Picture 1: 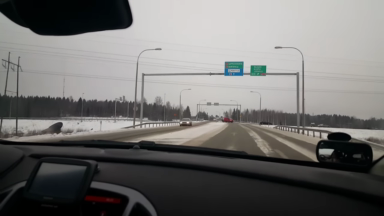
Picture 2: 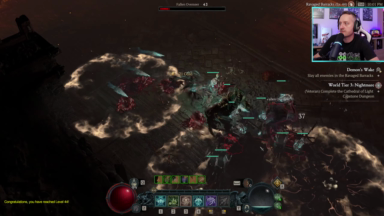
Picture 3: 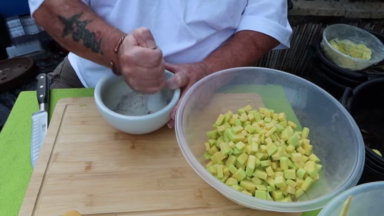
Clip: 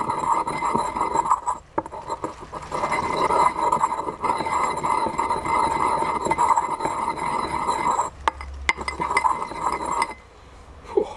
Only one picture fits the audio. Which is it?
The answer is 3